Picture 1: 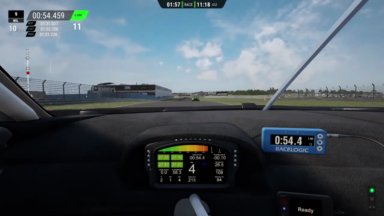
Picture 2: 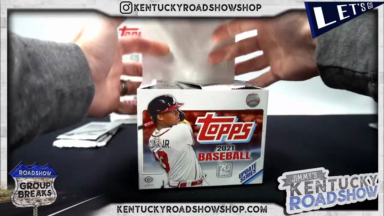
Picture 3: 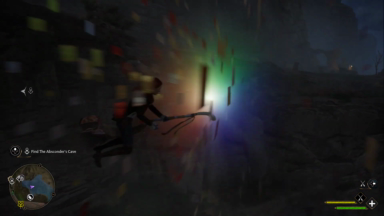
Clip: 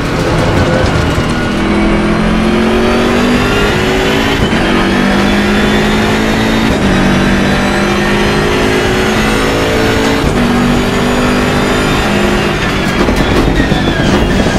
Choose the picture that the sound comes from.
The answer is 1